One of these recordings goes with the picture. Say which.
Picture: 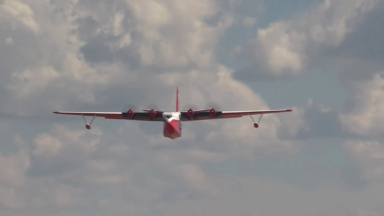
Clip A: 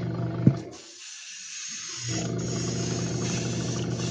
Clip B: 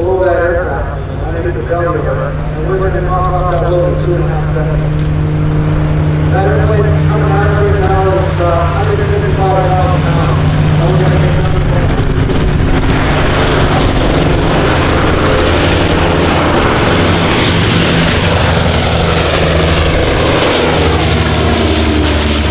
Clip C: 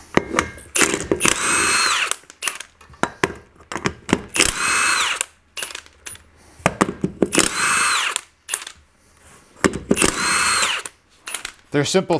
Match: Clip B